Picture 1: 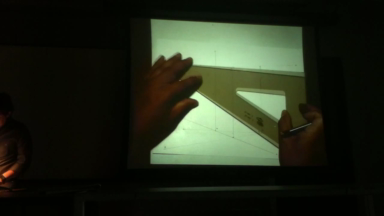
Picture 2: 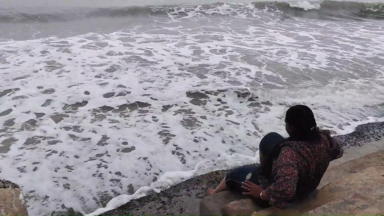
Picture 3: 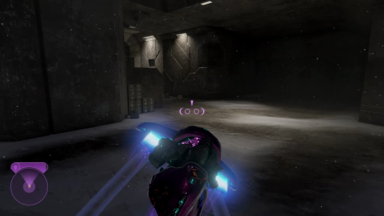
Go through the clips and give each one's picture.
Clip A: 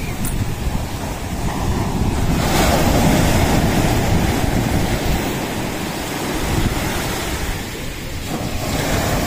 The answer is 2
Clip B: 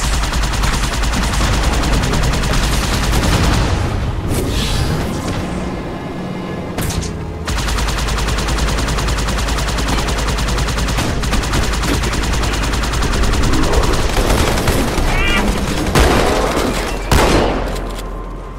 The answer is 3